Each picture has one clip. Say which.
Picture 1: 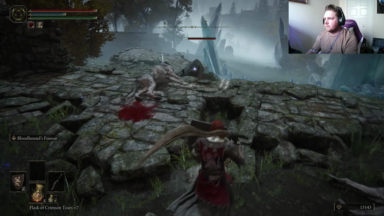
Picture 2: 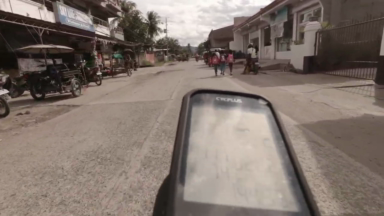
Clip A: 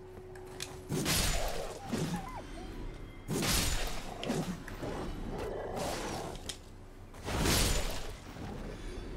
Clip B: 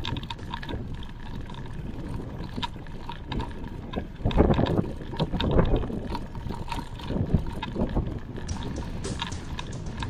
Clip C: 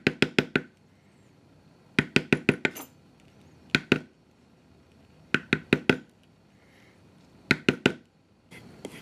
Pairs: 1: A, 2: B